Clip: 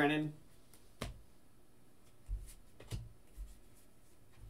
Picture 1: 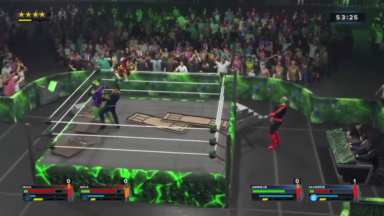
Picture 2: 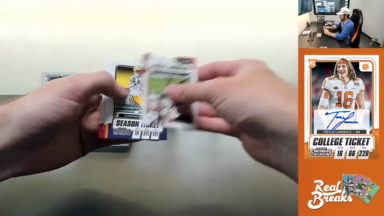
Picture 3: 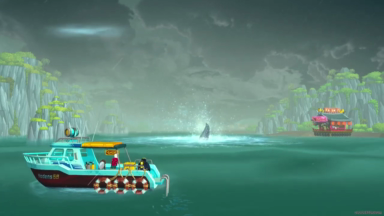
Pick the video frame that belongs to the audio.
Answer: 2